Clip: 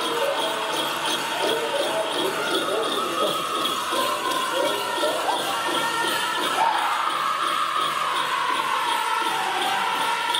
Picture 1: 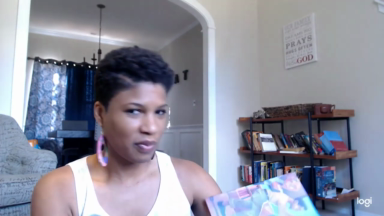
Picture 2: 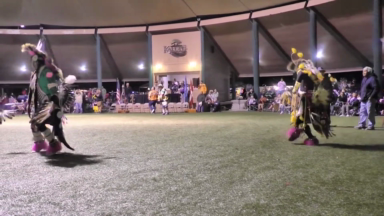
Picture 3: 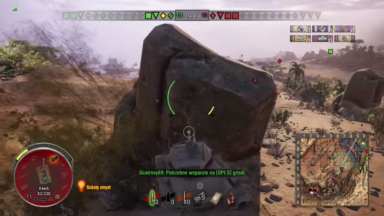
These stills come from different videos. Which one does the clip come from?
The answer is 2